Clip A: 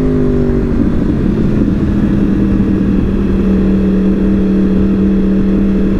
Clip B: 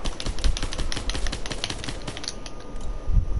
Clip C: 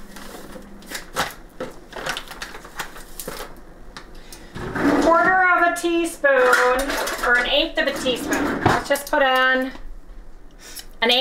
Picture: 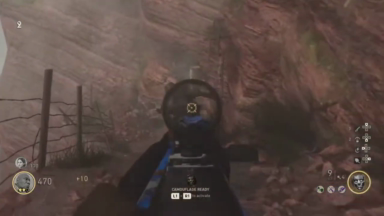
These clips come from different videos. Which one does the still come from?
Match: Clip B